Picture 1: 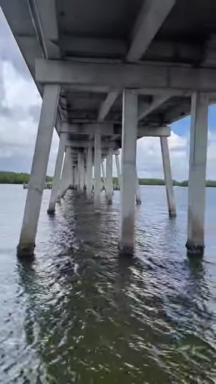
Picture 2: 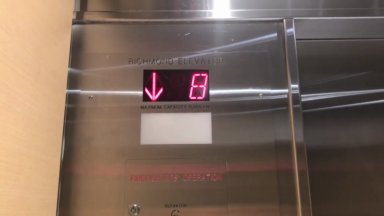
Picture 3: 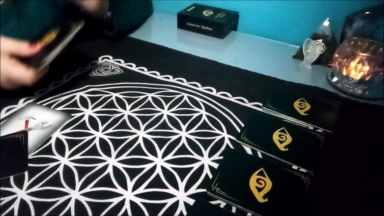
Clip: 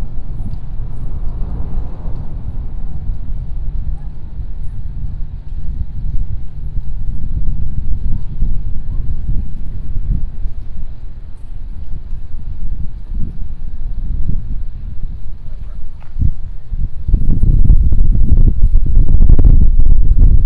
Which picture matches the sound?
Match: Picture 1